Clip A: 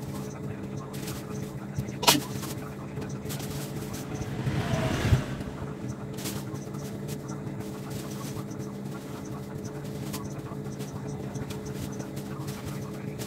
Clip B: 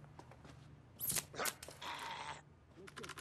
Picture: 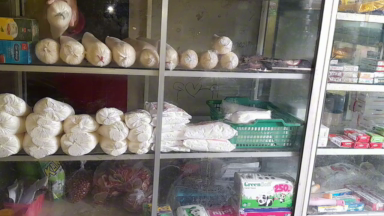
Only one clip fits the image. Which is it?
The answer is A